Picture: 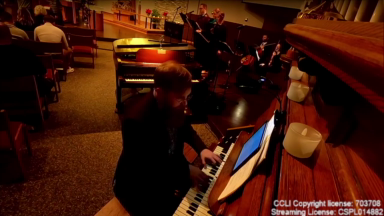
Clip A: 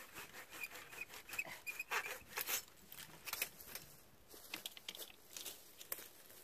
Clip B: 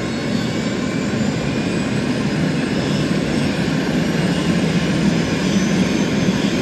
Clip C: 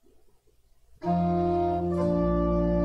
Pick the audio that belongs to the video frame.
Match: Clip C